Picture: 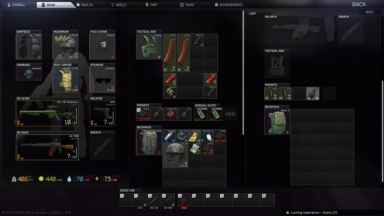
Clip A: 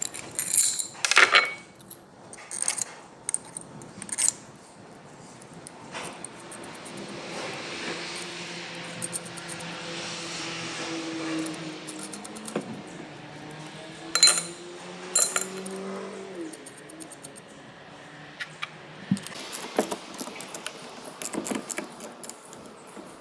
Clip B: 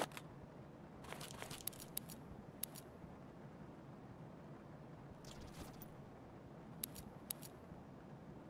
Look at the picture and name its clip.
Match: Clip B